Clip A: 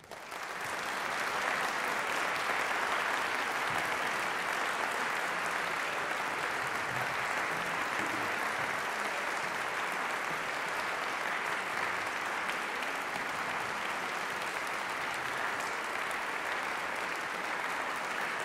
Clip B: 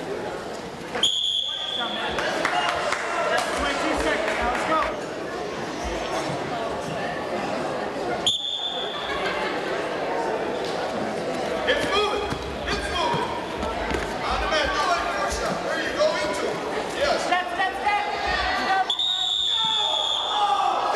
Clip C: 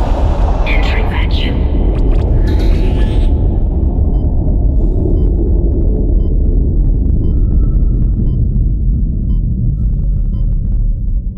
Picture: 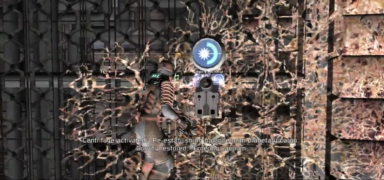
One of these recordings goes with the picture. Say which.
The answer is C